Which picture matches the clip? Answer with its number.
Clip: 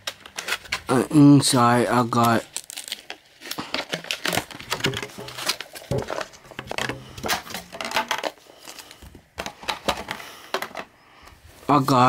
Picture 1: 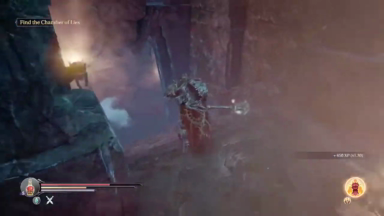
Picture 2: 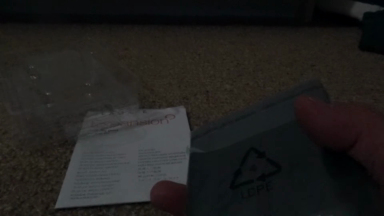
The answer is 2